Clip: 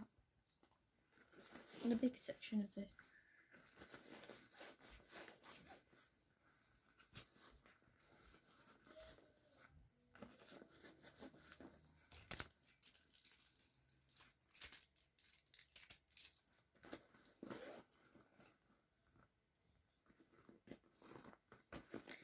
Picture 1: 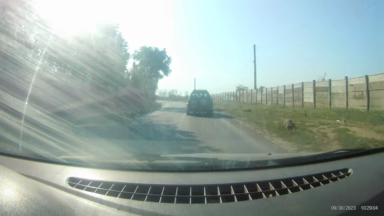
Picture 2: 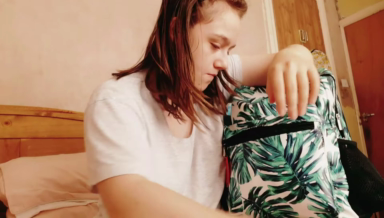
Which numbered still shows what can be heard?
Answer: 2